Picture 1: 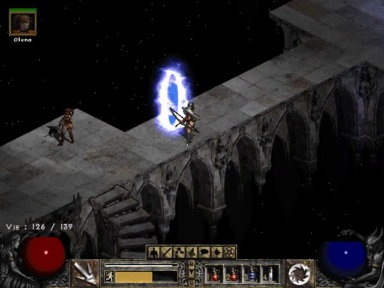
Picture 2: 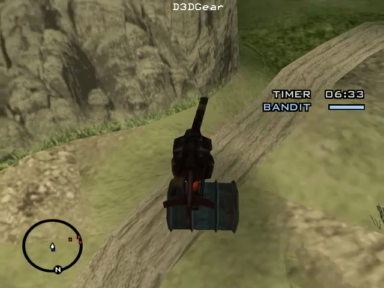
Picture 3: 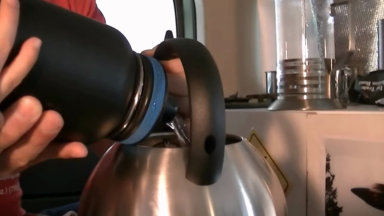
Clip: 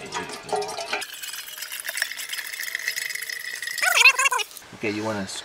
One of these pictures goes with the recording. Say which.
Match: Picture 3